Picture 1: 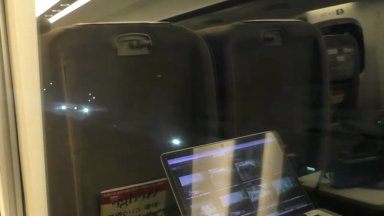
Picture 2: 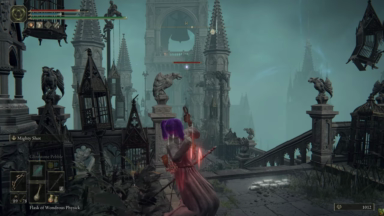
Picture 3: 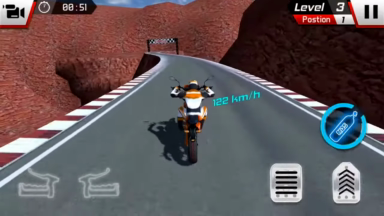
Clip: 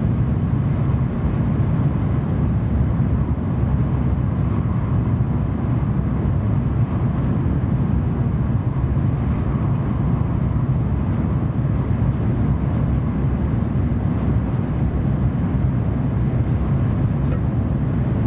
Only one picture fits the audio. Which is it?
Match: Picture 1